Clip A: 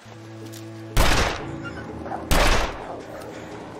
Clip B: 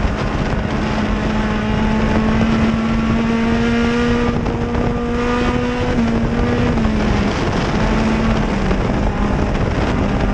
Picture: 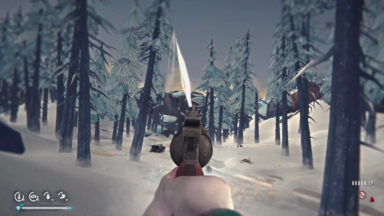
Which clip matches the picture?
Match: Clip A